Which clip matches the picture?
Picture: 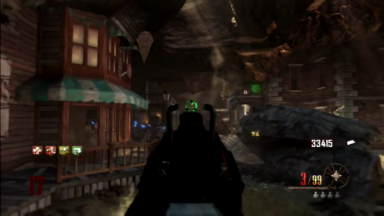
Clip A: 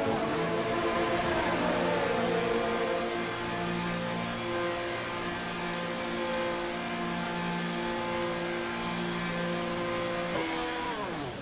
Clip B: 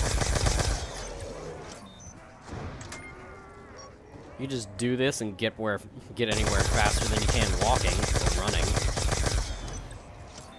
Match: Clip B